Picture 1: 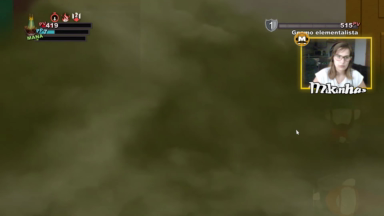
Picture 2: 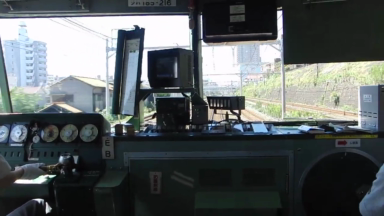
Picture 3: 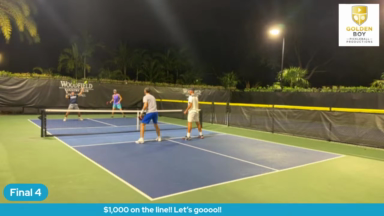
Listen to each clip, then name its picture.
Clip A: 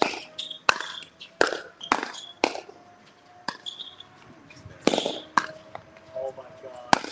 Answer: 3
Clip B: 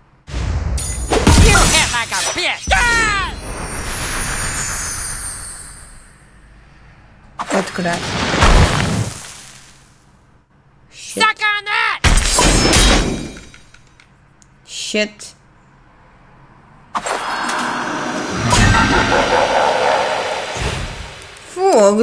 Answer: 1